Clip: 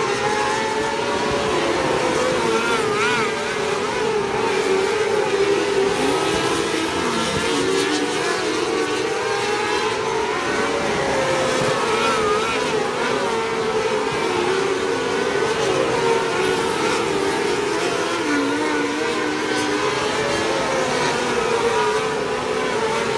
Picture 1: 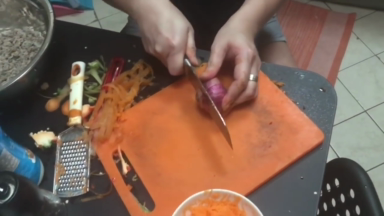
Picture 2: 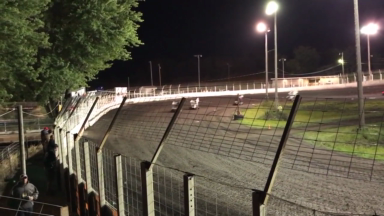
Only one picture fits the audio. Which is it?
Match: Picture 2